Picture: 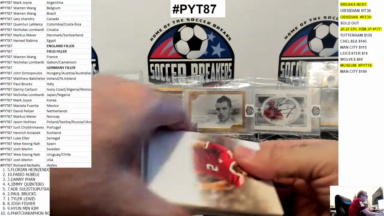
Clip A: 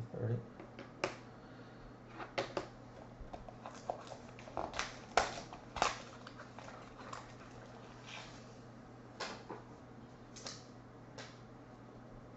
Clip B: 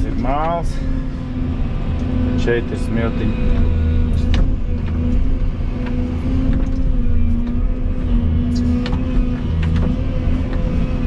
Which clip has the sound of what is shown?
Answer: A